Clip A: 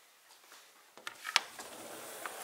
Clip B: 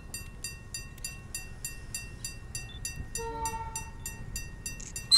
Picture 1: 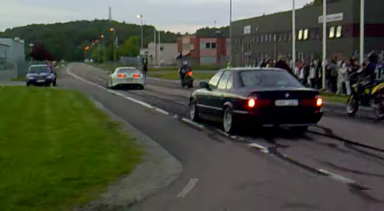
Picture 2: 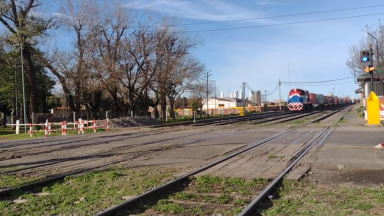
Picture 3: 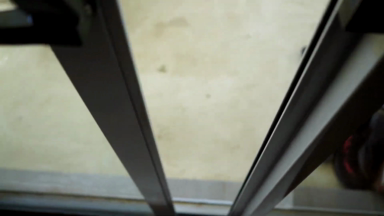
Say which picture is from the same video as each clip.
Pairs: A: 3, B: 2